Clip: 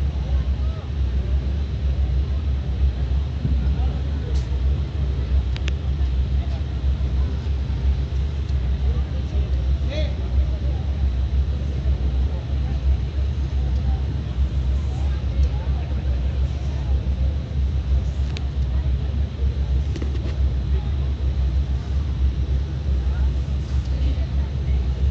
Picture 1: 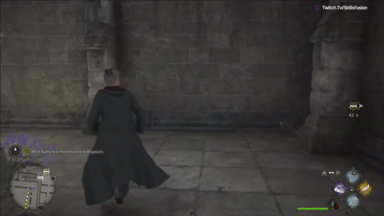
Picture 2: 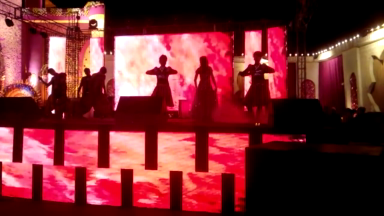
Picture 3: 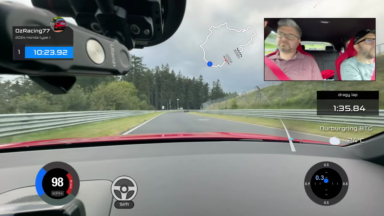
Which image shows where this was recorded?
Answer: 2